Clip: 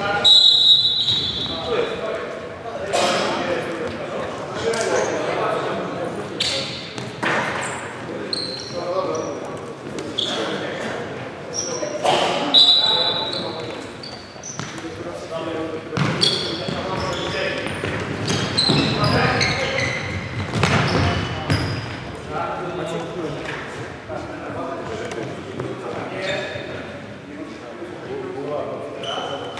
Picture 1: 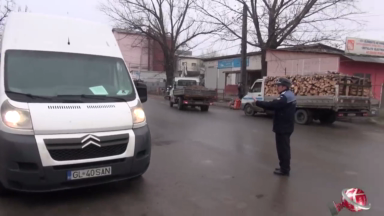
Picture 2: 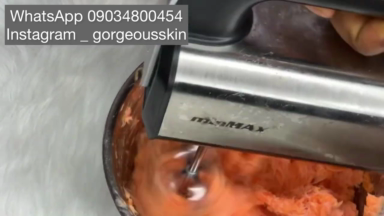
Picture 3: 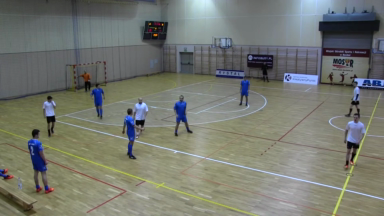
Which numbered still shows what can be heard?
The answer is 3